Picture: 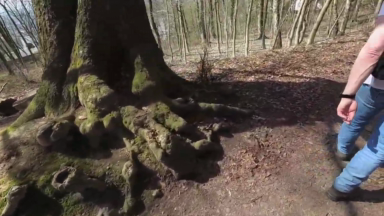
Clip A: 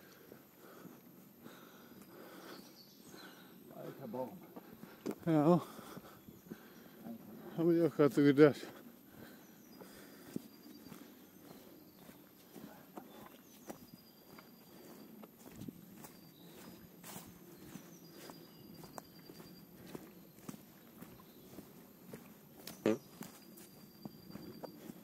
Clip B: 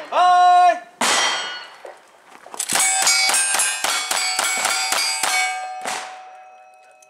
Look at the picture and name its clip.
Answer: A